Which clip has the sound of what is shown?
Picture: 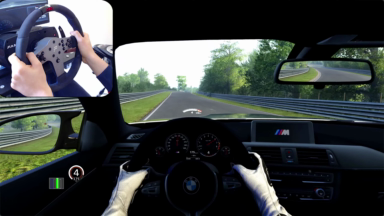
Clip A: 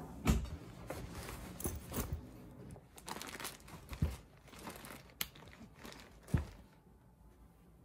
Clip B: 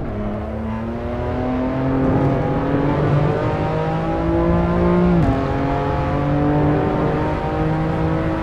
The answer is B